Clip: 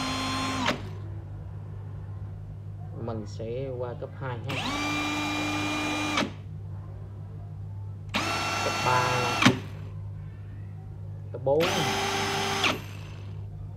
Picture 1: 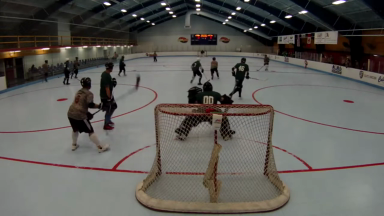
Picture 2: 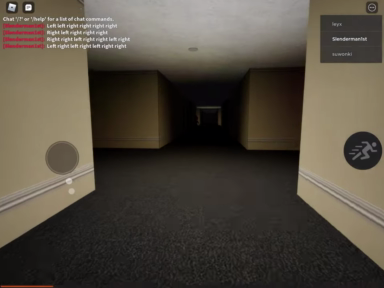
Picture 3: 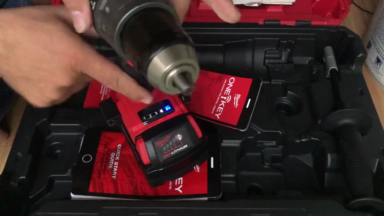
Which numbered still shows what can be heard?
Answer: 3